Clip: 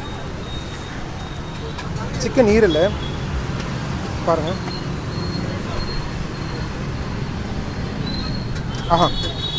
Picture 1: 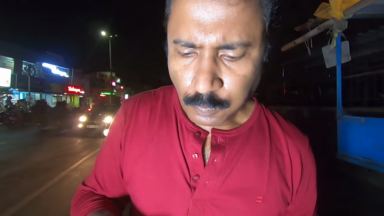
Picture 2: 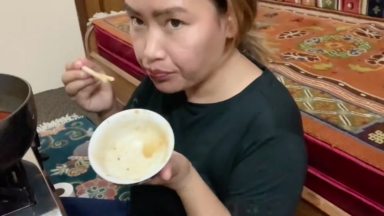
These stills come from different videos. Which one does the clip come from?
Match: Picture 1